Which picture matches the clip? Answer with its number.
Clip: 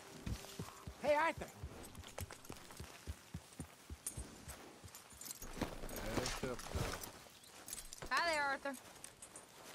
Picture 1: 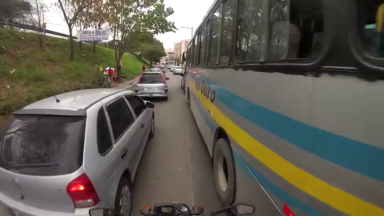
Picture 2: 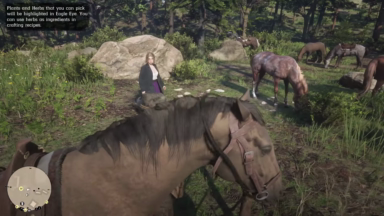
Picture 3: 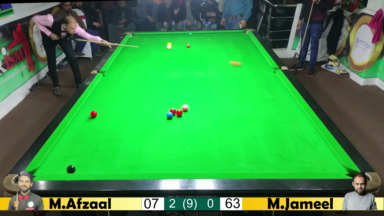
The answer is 2